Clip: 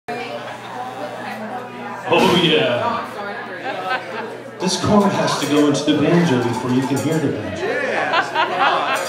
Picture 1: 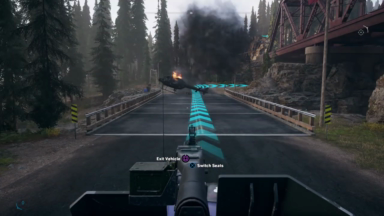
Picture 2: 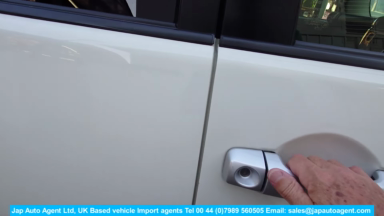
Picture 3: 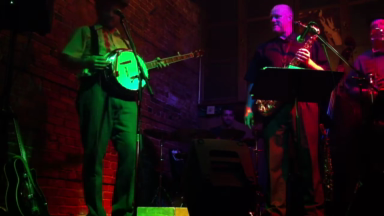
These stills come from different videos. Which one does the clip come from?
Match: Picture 3